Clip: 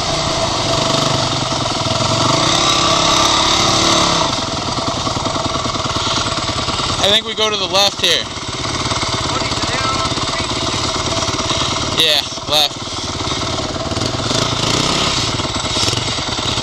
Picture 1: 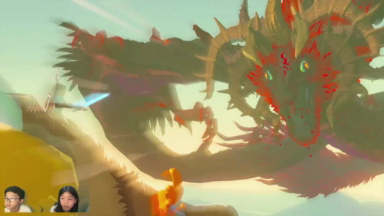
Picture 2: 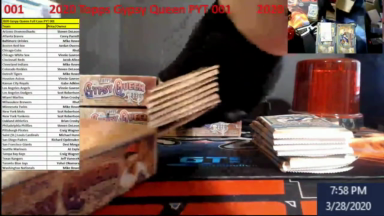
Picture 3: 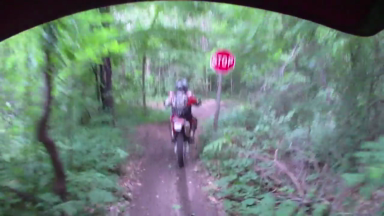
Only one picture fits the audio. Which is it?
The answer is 3